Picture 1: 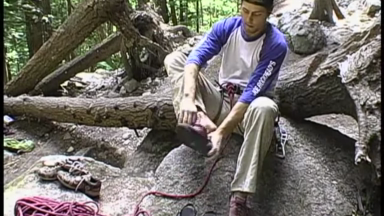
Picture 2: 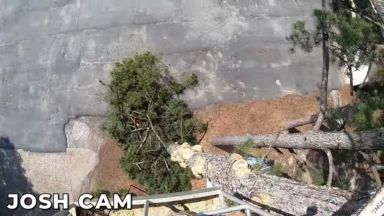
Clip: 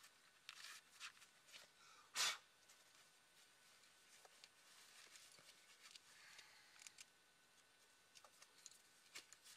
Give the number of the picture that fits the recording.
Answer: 1